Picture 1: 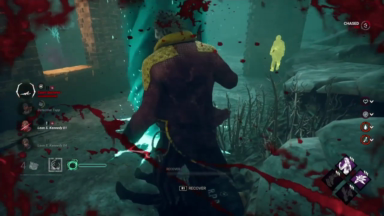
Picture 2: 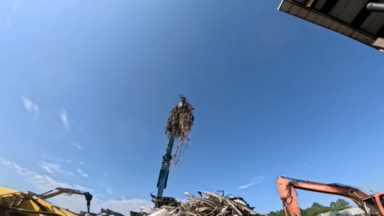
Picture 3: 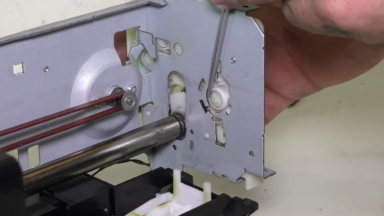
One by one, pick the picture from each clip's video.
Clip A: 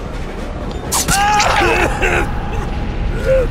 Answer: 1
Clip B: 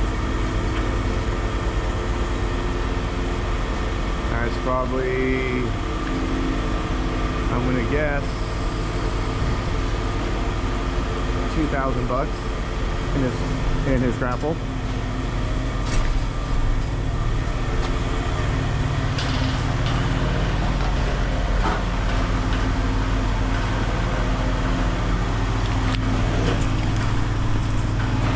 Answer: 2